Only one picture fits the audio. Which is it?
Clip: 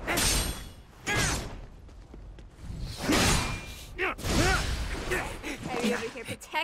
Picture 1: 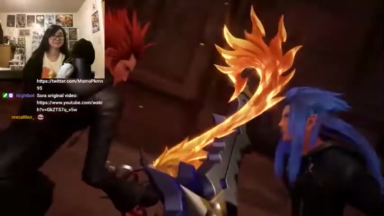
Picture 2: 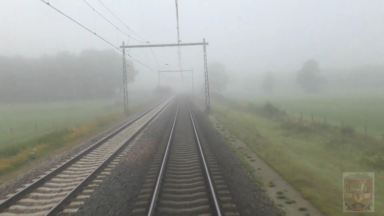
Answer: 1